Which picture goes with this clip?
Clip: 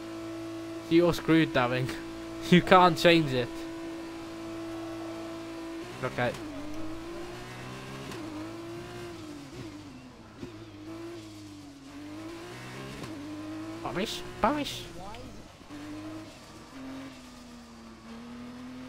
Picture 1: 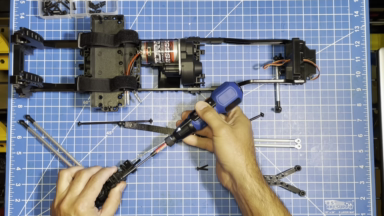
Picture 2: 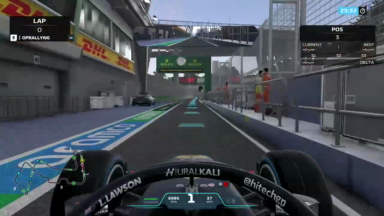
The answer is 2